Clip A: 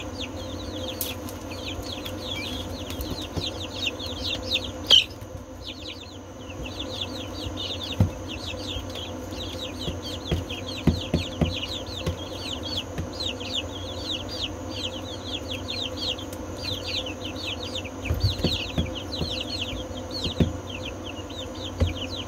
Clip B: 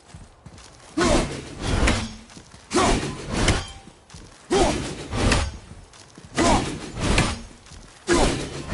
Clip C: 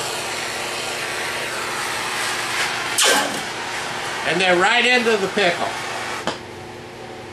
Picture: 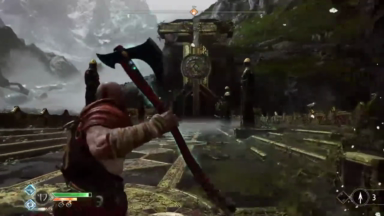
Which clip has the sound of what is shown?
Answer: B